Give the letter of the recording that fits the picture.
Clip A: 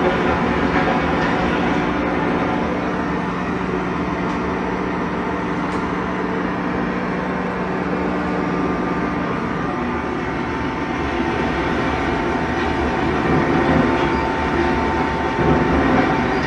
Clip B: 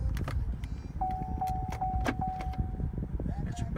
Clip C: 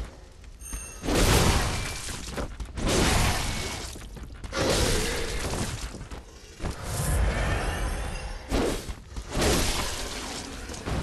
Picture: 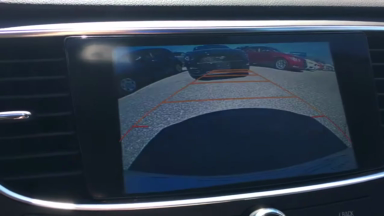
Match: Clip B